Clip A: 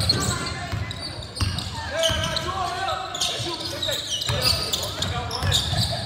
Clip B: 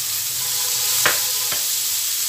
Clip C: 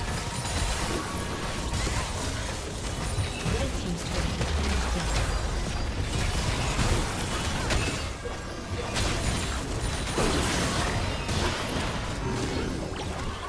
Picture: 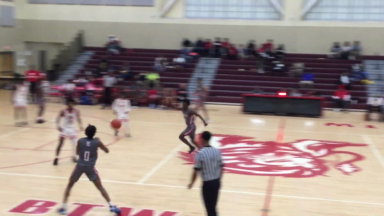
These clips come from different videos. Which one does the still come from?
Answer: A